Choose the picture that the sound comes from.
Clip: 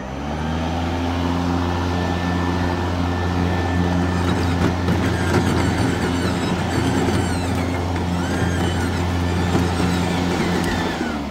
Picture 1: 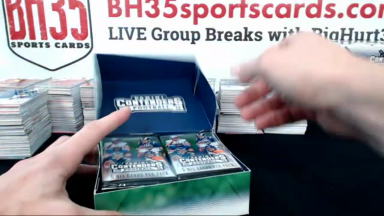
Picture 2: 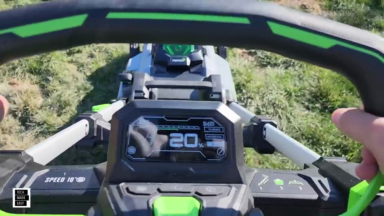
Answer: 2